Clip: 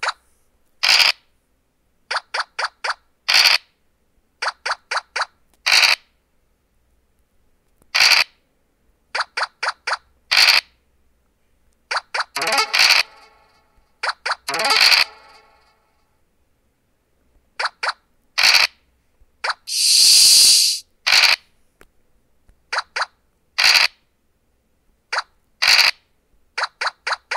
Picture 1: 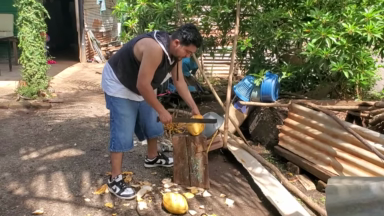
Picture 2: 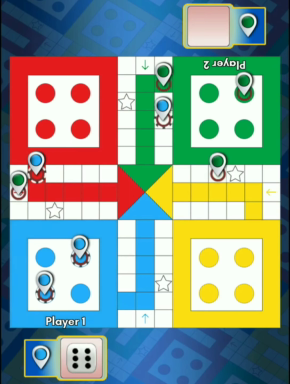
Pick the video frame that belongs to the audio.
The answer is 2